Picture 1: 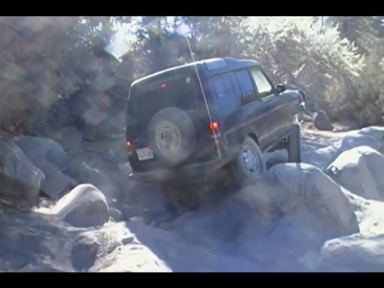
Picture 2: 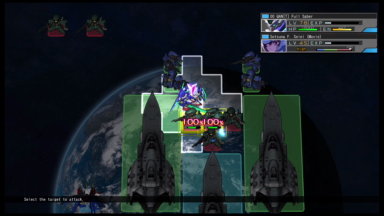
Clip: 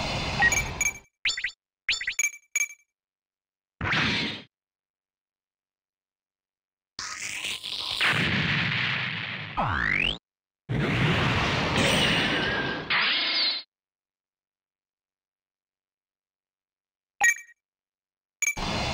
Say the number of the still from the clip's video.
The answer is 2